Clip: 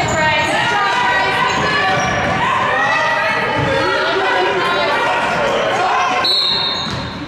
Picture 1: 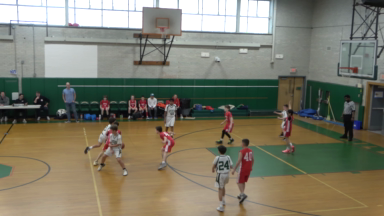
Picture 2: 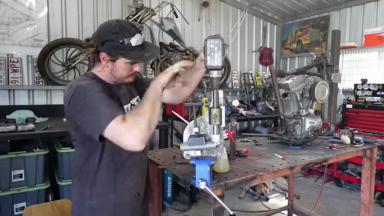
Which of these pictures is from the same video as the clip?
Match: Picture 1